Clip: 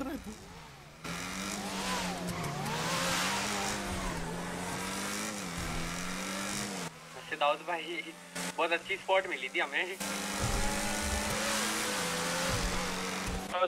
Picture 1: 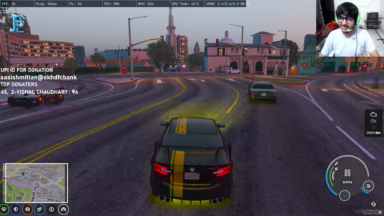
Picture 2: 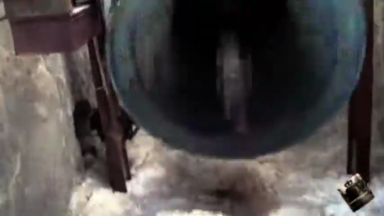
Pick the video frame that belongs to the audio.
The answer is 1